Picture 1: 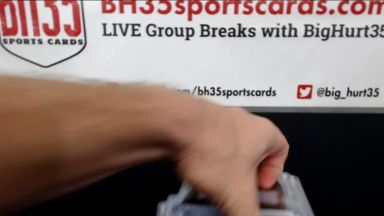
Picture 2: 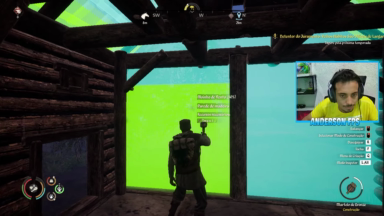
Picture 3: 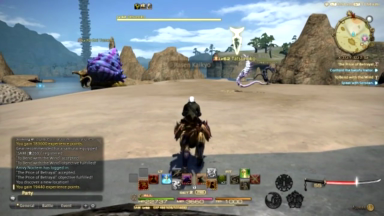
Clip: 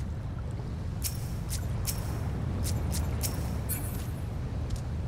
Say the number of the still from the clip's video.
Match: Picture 3